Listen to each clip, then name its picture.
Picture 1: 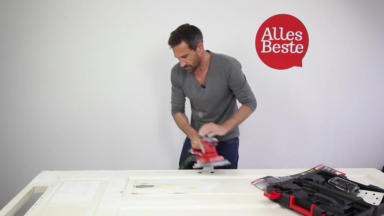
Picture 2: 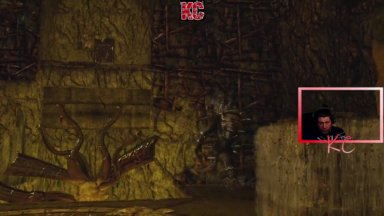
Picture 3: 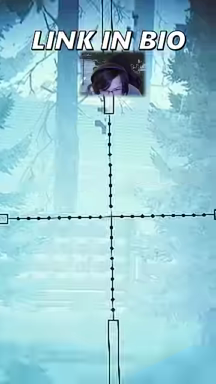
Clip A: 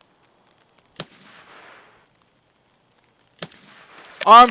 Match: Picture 3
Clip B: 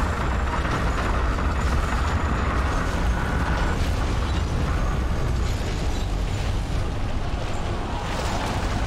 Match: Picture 2